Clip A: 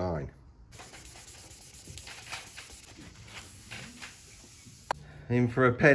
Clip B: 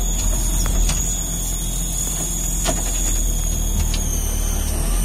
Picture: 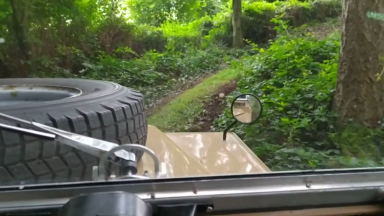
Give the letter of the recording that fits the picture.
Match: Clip B